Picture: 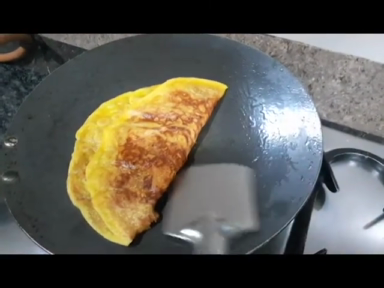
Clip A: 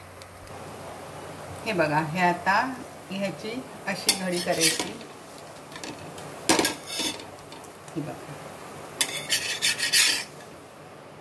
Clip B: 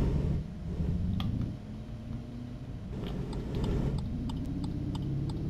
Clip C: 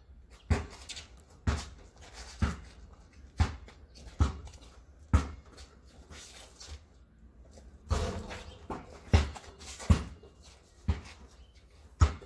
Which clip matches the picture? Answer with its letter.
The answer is A